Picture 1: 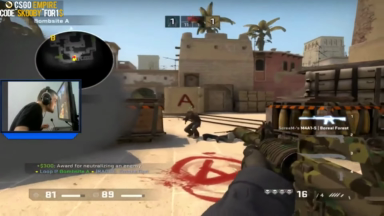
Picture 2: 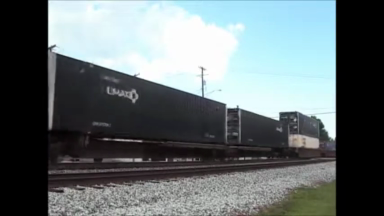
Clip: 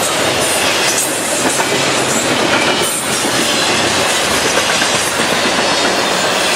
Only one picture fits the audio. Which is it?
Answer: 2